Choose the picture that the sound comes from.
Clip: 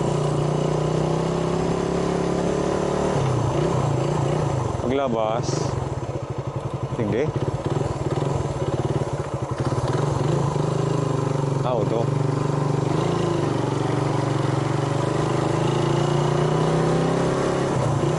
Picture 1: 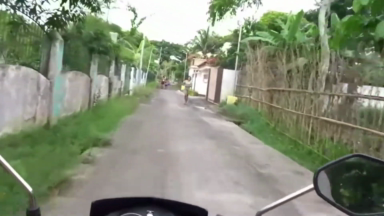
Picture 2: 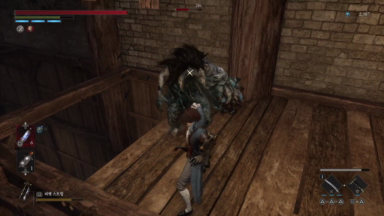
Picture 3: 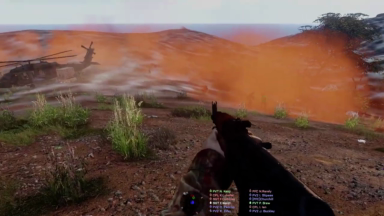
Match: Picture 1